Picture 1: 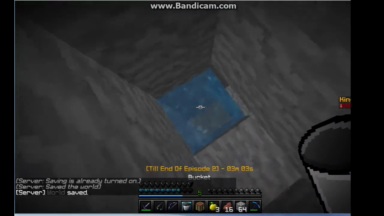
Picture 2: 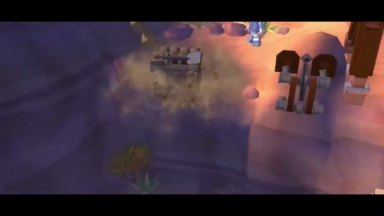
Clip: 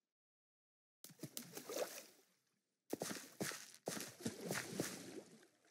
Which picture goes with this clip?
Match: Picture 1